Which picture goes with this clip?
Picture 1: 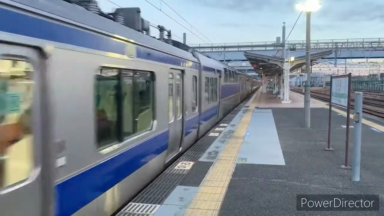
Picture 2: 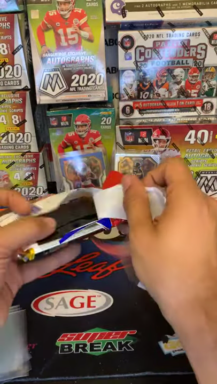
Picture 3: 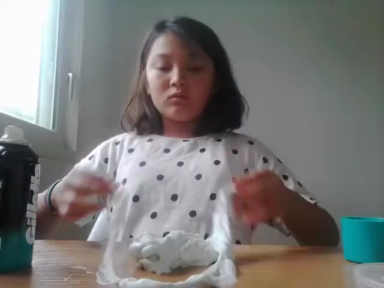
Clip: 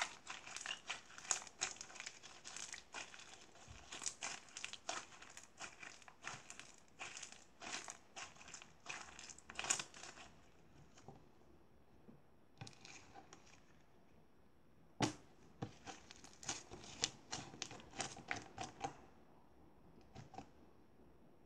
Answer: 3